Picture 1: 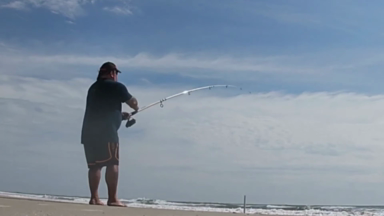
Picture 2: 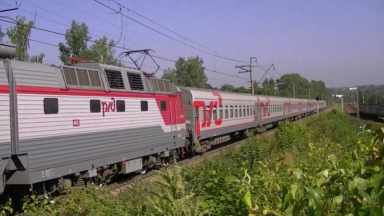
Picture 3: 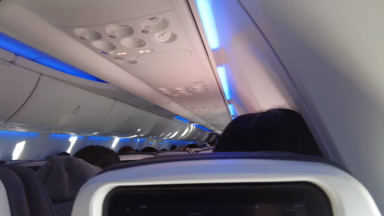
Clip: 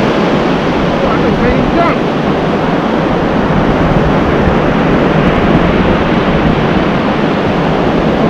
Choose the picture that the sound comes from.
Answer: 1